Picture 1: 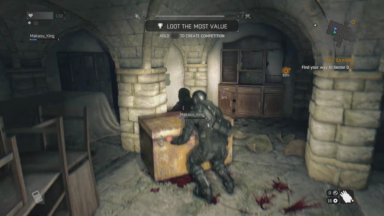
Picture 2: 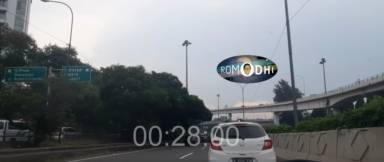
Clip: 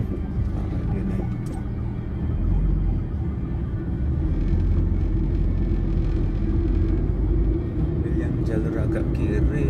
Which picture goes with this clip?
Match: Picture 2